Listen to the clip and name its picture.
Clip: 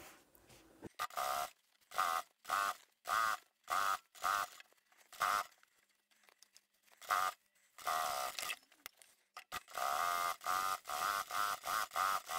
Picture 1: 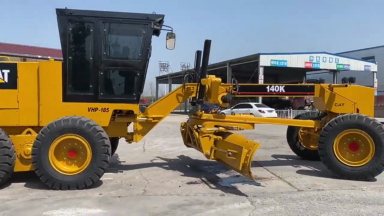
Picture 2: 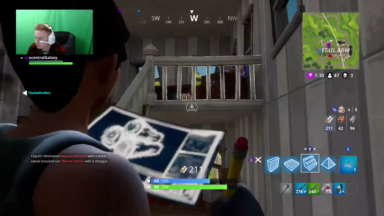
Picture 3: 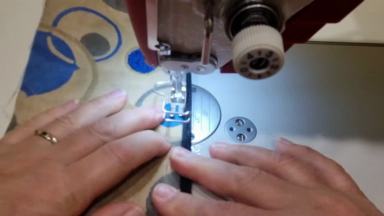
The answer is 3